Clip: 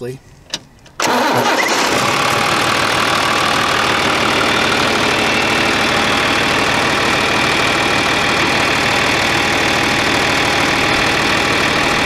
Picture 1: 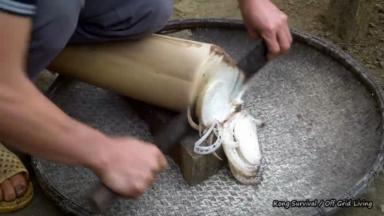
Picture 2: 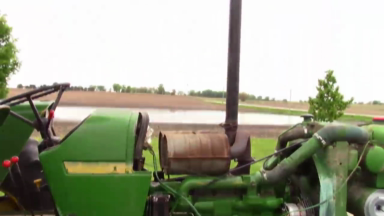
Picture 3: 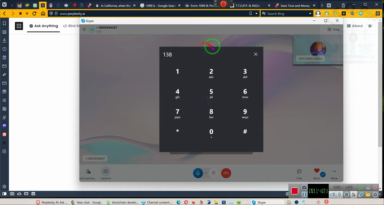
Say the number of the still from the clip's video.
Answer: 2